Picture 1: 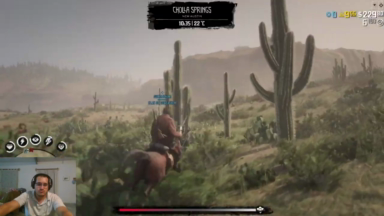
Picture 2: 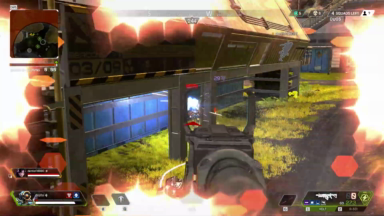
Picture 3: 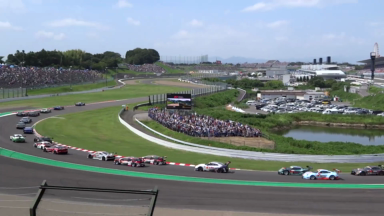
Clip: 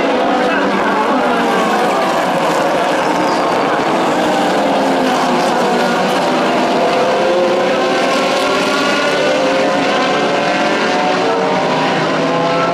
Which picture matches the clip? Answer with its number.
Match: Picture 3